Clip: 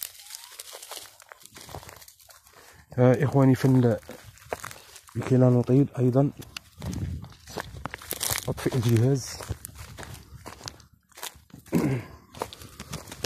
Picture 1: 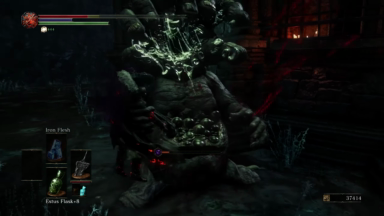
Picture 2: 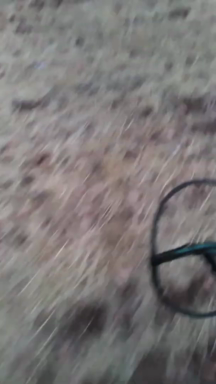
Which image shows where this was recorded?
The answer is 2